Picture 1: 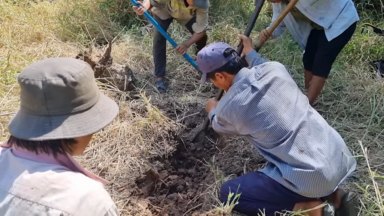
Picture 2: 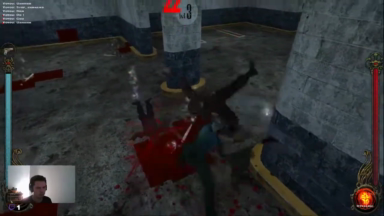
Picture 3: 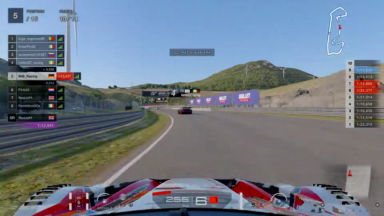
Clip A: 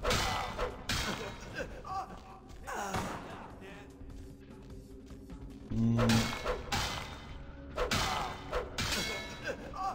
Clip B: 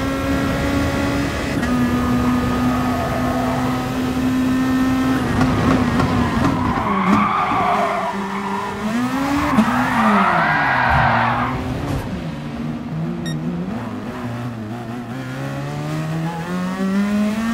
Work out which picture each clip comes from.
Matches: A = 2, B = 3